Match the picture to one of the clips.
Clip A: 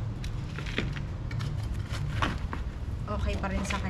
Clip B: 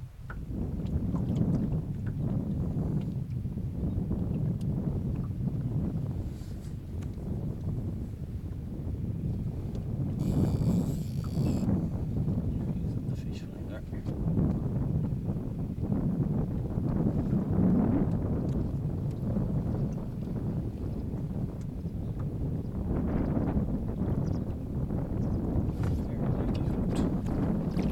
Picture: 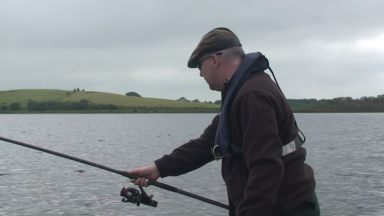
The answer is B